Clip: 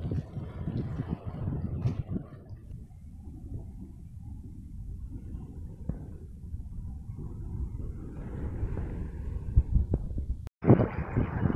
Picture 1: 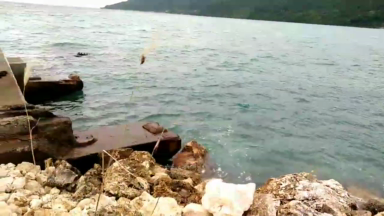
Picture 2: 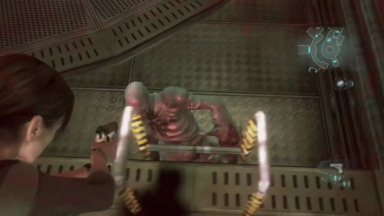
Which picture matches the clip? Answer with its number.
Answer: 1